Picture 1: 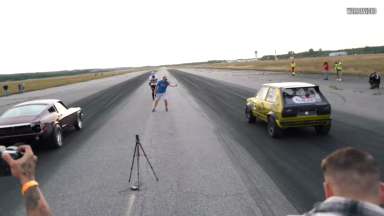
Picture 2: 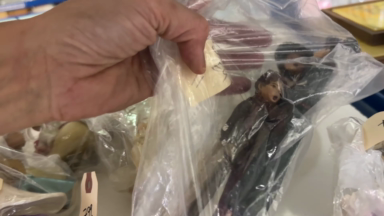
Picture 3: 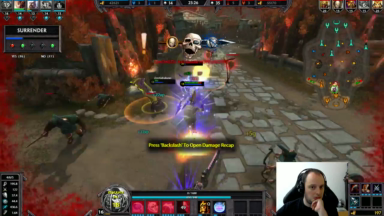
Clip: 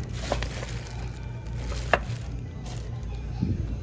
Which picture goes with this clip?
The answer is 2